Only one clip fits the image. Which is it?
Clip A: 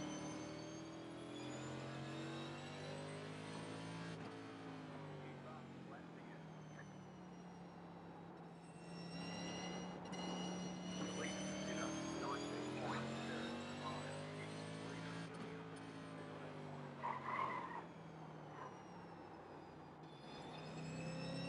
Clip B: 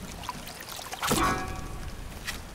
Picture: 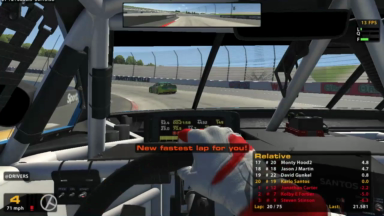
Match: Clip A